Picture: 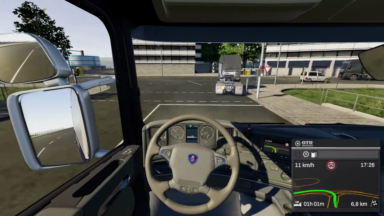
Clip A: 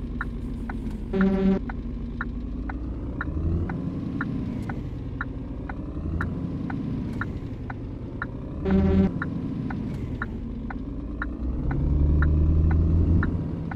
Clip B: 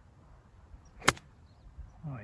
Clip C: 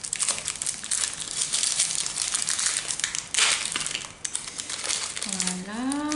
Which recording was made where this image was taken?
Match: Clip A